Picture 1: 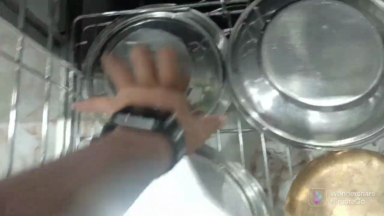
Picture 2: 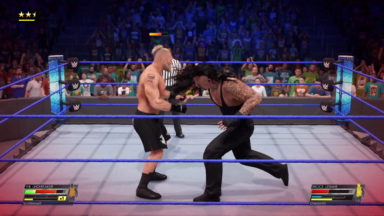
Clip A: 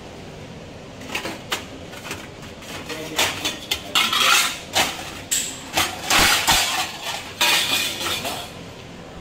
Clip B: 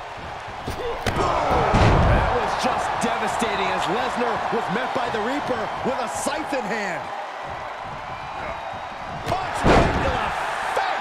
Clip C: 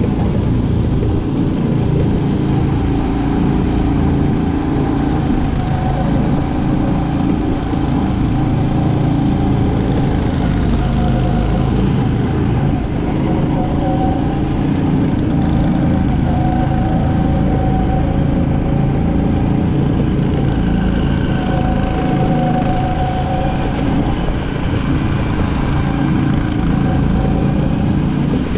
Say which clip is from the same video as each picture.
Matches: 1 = A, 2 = B